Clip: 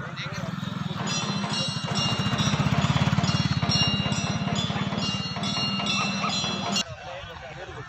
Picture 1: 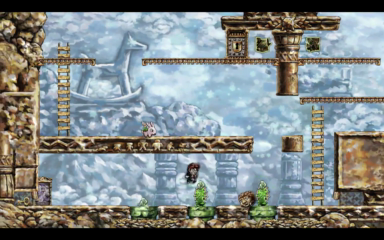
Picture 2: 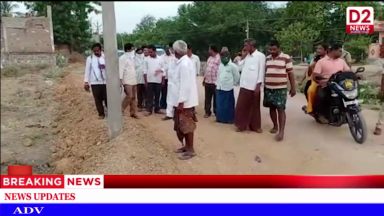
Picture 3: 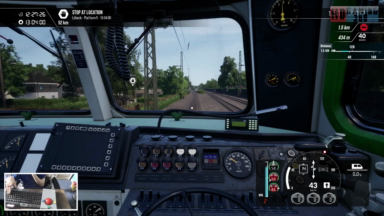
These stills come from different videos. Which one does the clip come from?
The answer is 2